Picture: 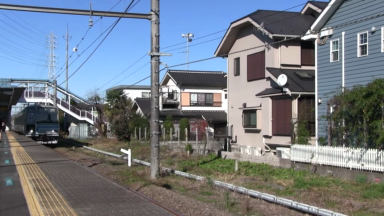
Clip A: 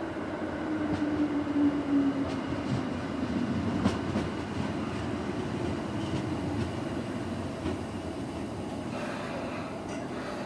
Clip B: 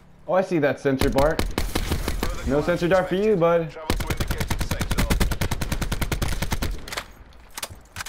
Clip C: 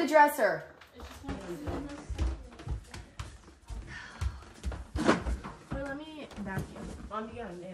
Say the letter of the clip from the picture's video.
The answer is A